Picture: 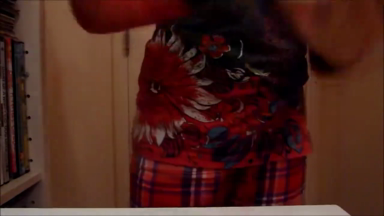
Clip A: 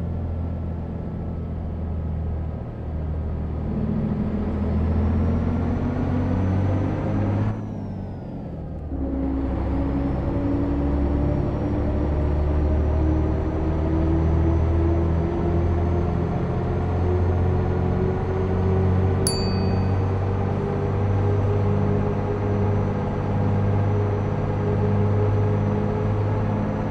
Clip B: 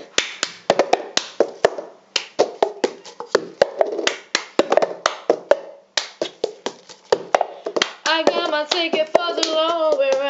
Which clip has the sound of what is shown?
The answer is B